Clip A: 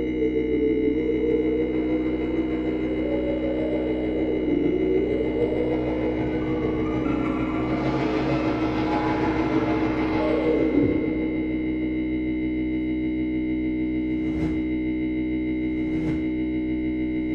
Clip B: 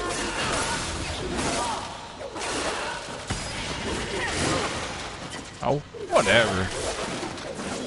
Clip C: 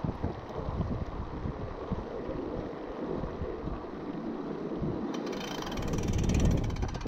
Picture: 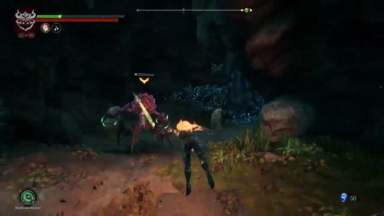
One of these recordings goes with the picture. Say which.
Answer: B